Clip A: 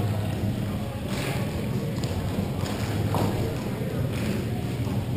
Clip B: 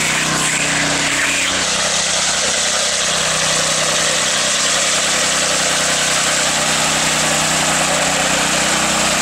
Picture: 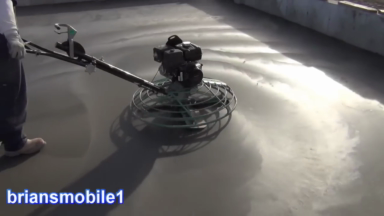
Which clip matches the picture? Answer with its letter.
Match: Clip B